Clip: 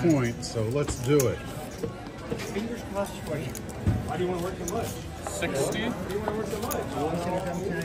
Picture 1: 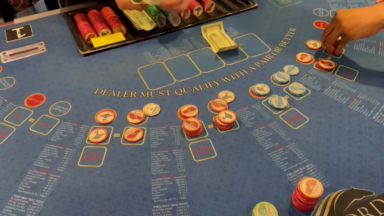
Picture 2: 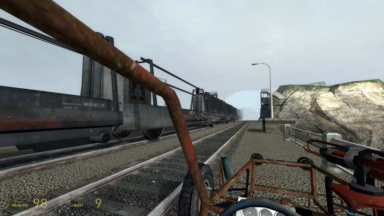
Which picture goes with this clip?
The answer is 1